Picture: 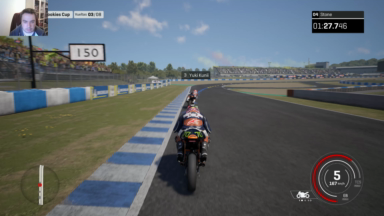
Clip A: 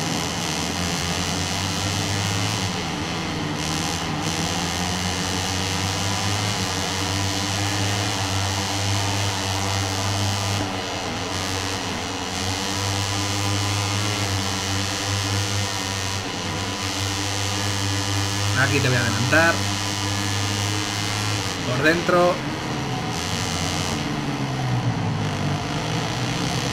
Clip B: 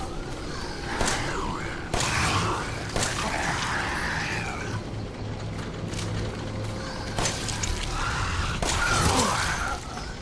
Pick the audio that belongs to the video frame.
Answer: A